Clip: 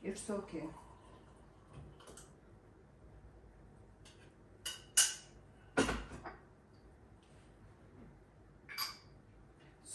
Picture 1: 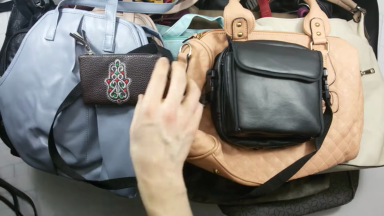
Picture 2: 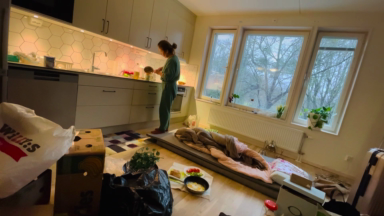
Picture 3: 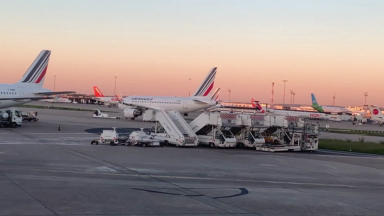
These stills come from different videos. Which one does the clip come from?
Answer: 2